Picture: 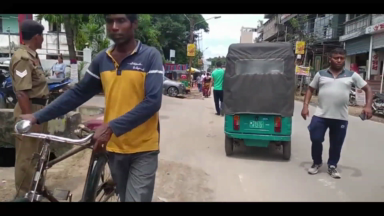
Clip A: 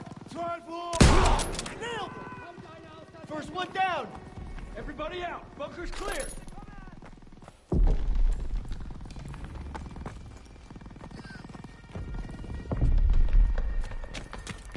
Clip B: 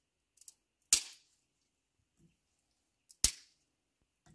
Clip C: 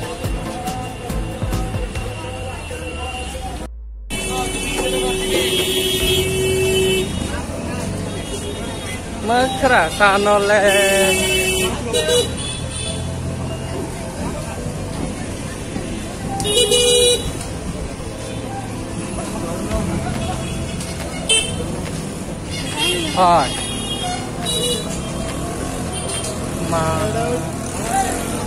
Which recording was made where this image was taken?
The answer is C